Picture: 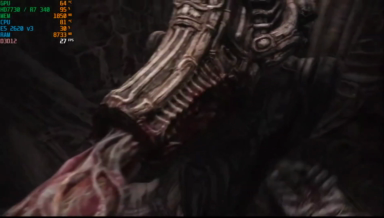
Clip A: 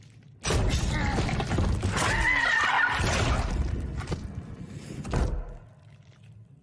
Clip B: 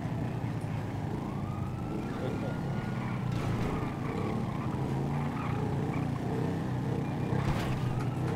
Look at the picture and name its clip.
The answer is A